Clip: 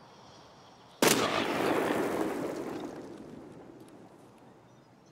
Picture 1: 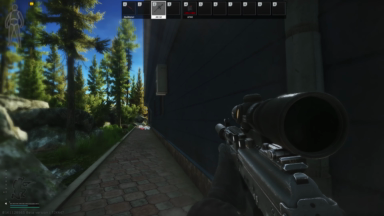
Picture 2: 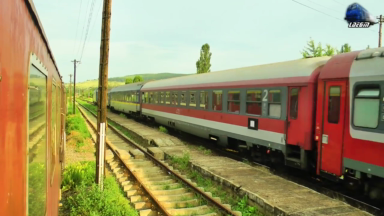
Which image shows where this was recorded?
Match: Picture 1